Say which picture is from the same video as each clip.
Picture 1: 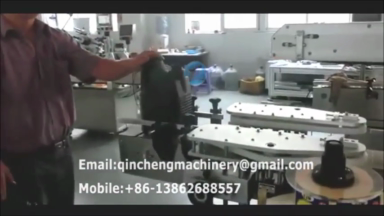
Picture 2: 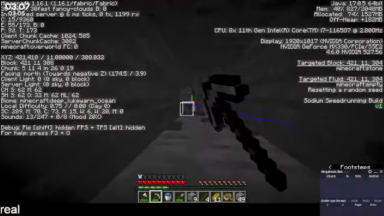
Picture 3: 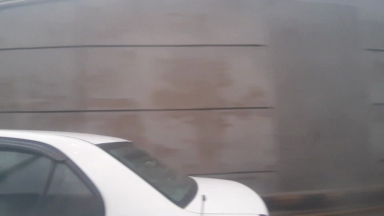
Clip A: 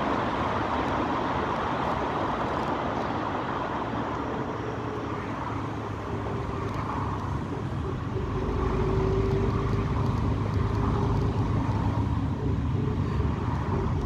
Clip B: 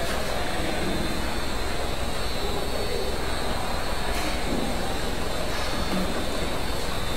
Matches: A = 3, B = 1